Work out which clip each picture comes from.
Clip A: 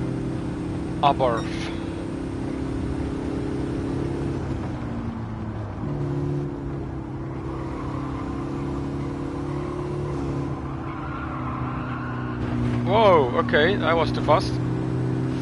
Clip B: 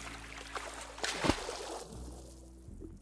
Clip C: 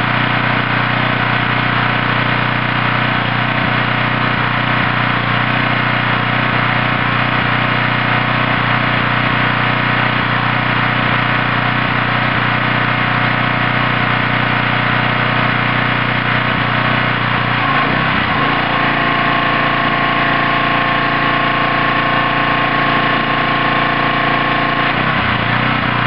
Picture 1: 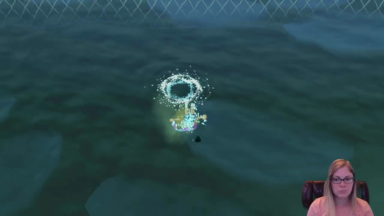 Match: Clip B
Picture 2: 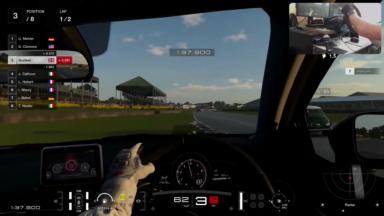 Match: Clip A